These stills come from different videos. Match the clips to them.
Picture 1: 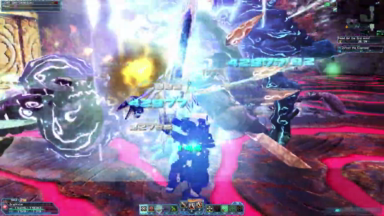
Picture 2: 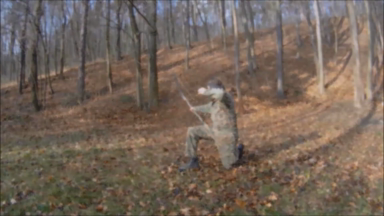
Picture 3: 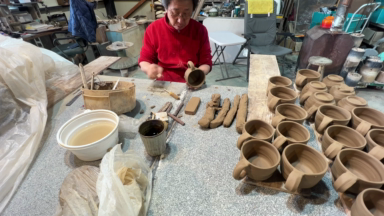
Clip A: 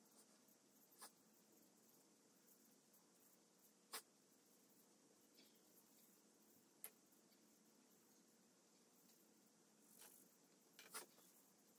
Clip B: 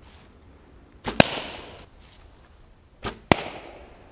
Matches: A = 3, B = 2